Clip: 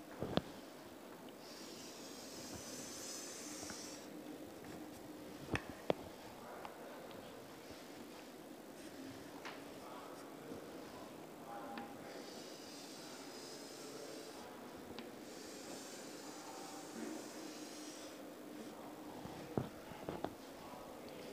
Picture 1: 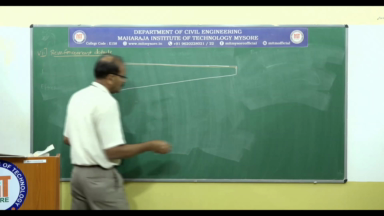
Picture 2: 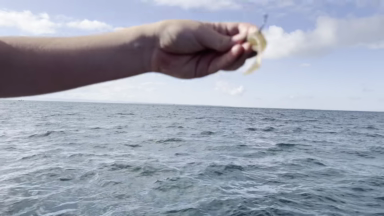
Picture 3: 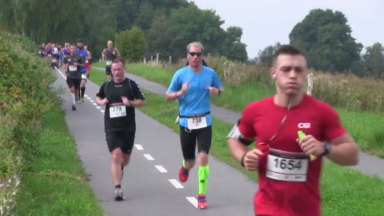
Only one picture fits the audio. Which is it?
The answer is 1